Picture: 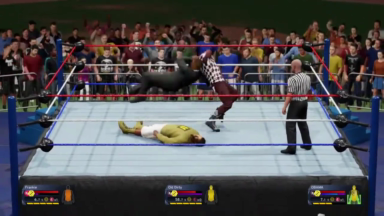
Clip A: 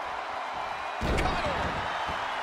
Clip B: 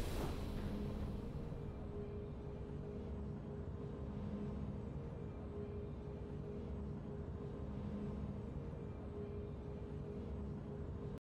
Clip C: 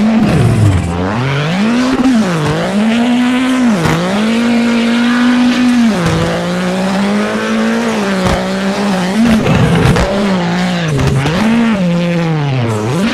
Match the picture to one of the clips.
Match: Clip A